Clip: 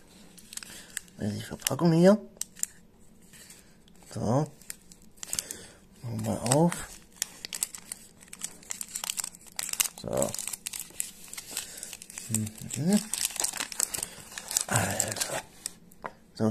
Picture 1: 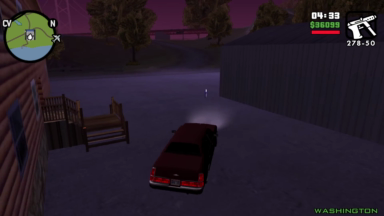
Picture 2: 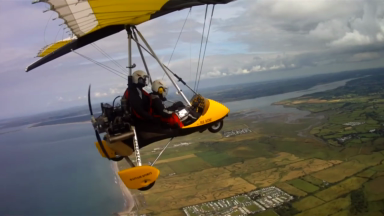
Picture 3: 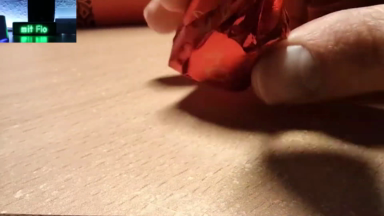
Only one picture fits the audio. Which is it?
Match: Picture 3